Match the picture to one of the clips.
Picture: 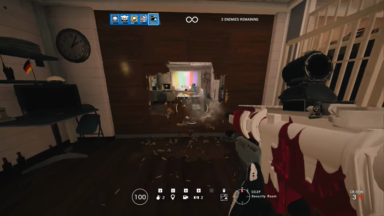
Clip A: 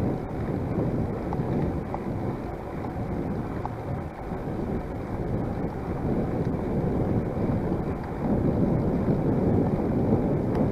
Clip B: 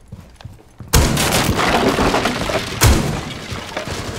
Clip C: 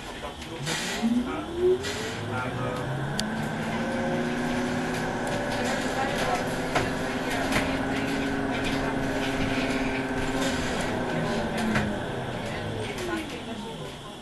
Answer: B